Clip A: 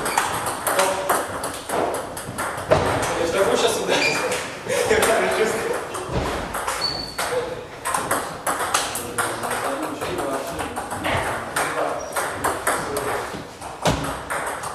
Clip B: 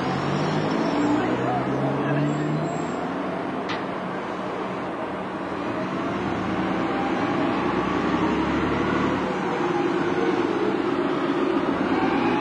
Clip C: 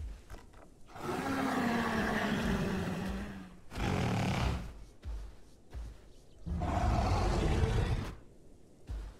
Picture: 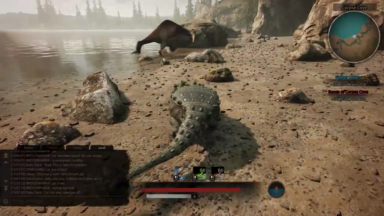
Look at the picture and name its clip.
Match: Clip C